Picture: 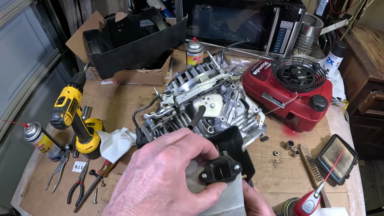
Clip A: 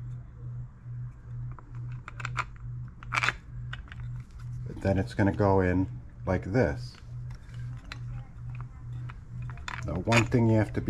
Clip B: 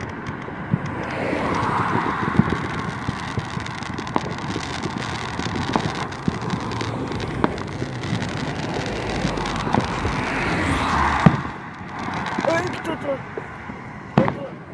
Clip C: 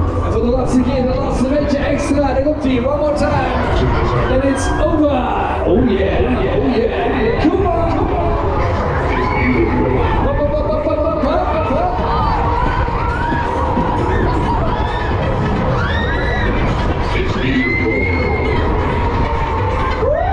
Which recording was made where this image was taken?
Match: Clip A